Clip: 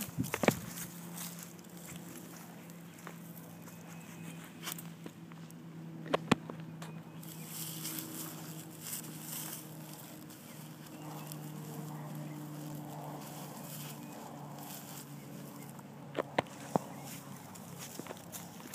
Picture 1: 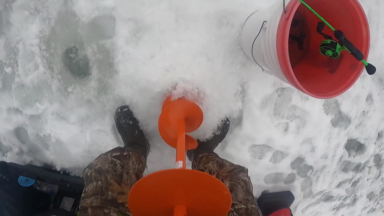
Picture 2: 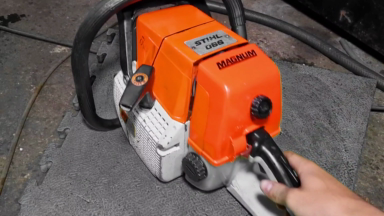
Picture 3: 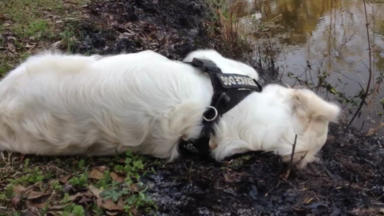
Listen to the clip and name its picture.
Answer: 3